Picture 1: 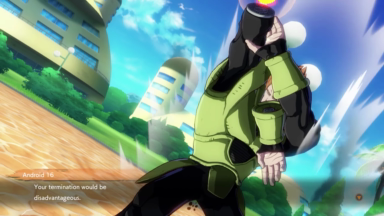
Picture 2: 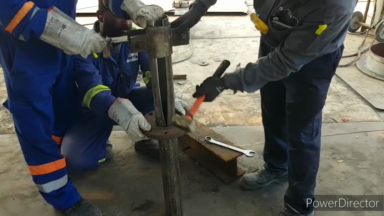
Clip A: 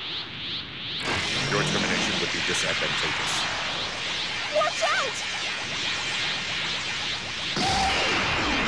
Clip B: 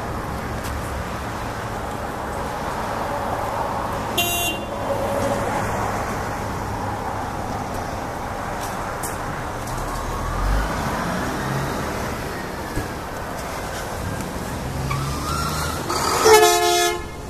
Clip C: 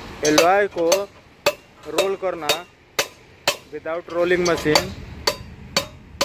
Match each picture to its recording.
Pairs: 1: A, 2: C